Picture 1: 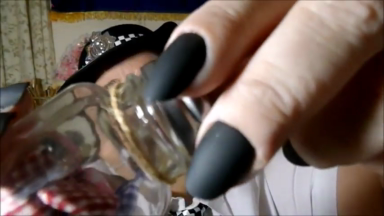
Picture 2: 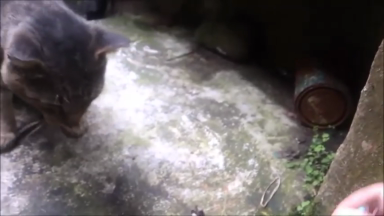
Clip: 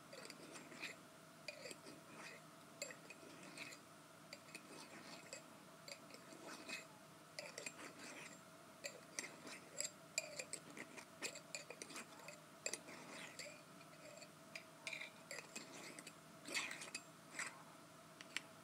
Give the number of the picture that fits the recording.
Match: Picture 1